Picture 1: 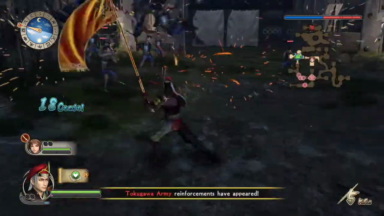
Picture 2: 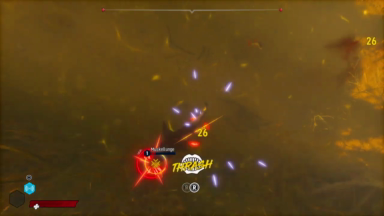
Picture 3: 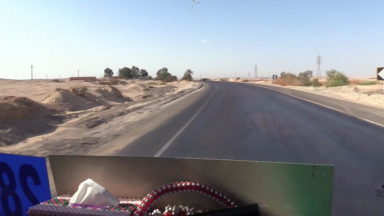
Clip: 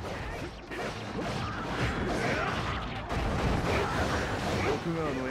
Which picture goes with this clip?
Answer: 1